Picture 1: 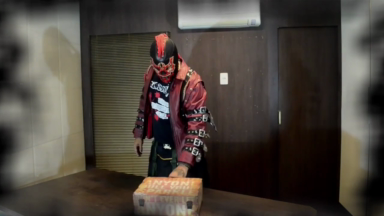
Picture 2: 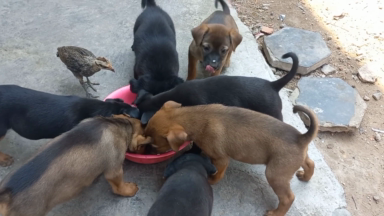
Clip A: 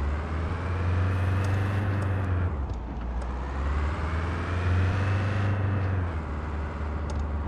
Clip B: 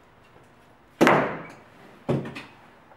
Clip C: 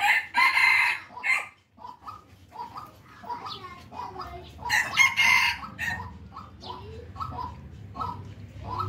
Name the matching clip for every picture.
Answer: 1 B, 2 C